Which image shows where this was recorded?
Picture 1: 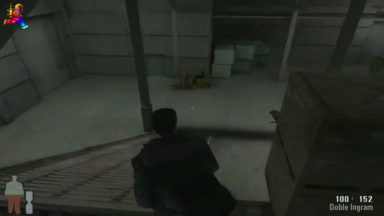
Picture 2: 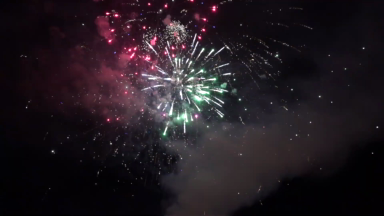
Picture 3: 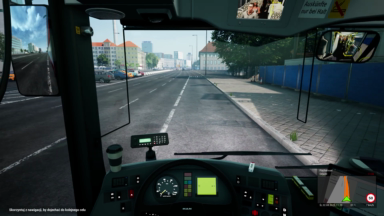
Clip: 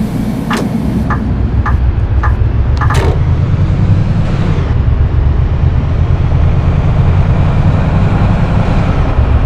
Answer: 3